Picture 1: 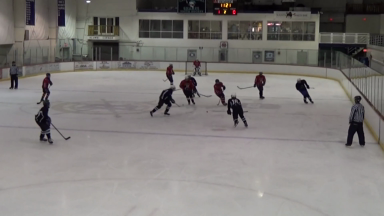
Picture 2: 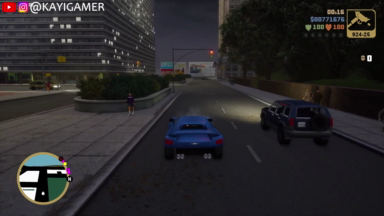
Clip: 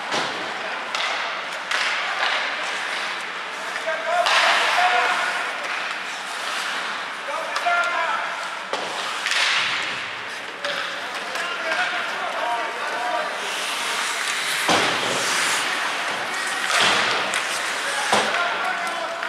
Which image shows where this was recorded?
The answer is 1